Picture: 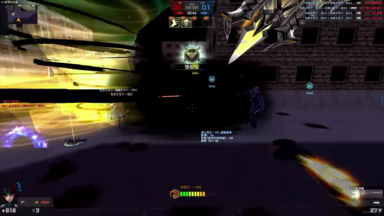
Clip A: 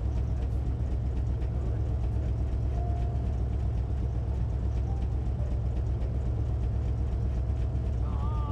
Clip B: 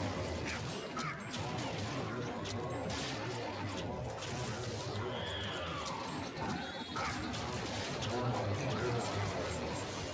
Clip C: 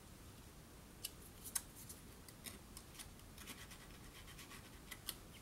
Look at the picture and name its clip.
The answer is B